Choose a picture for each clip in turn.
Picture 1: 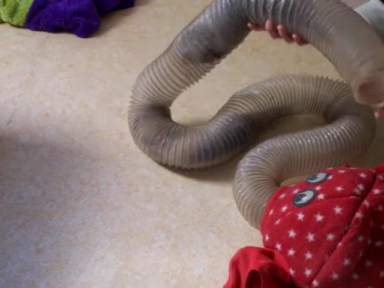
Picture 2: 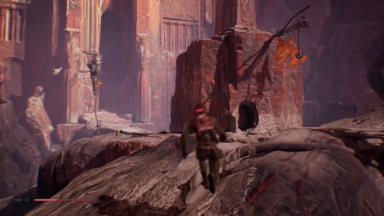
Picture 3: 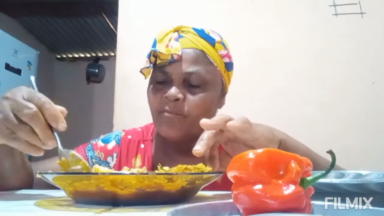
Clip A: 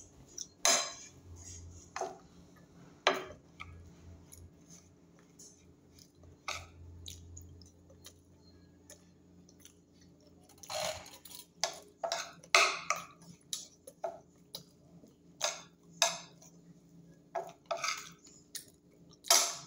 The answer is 3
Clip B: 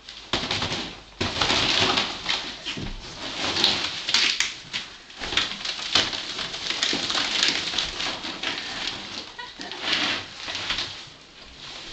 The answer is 1